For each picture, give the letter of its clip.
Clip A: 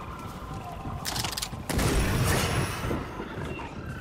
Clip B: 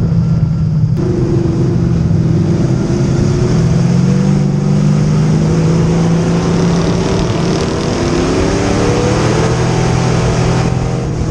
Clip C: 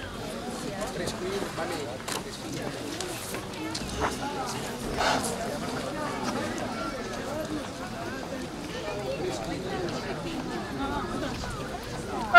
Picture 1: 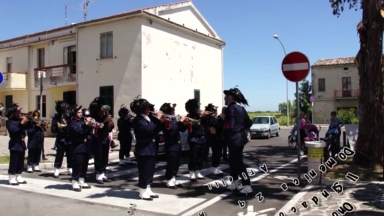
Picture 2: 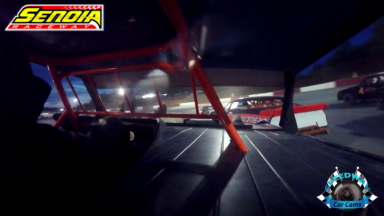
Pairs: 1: C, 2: B